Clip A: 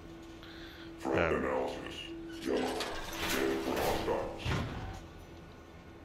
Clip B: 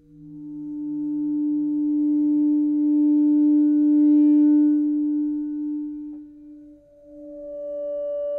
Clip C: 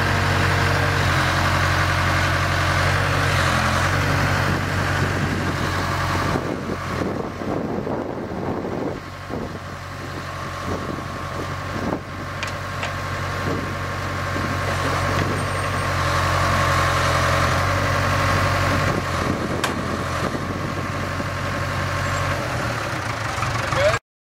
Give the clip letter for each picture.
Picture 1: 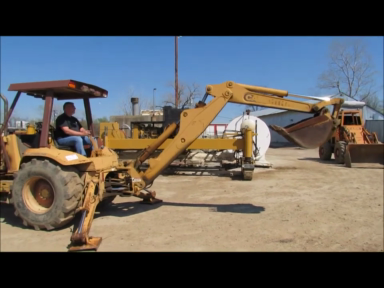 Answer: C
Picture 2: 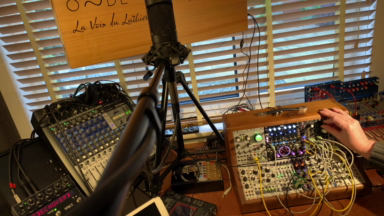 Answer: B